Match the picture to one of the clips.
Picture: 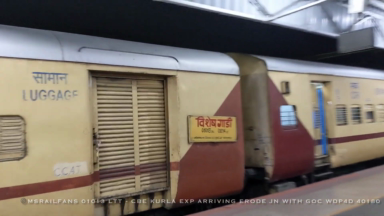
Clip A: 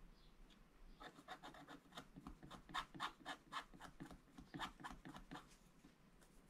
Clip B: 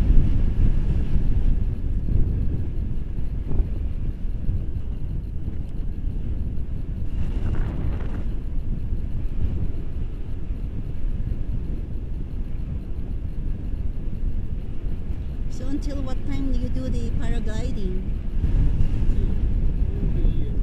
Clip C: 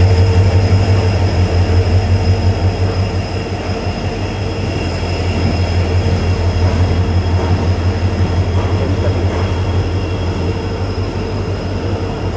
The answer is C